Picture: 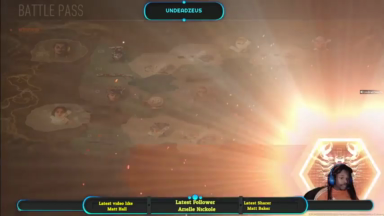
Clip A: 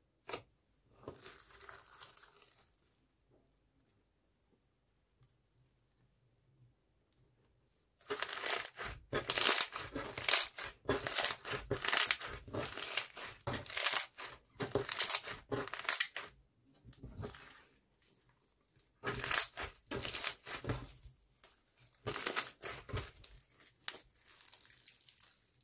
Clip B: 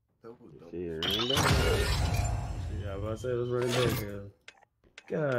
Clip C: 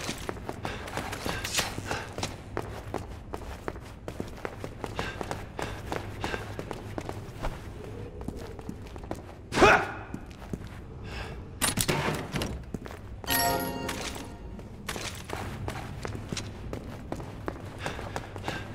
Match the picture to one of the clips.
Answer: B